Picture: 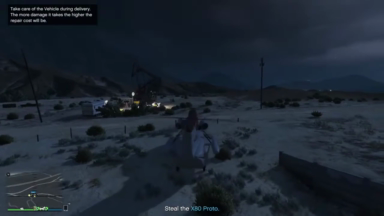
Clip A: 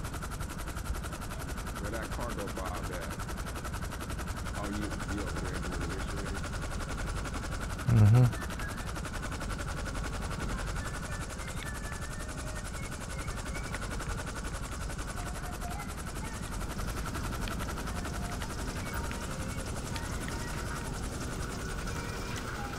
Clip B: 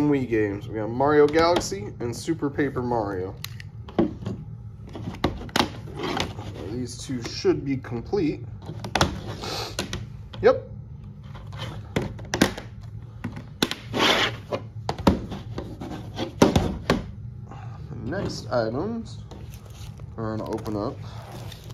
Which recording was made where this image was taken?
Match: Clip A